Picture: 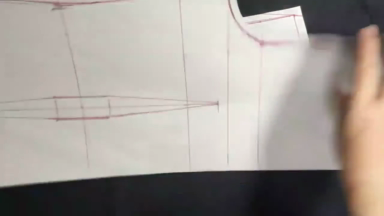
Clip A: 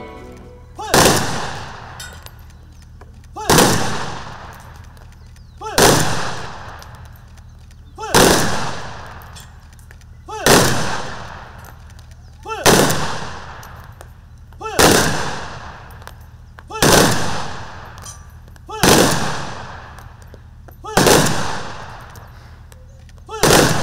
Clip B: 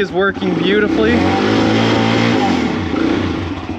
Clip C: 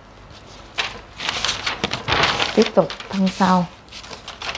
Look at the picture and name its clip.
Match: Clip C